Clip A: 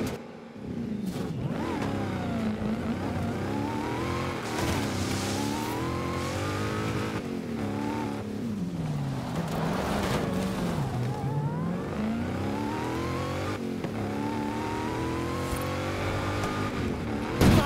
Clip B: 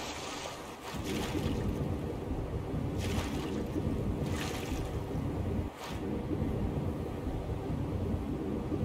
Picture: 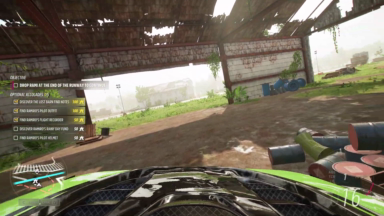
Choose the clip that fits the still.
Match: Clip A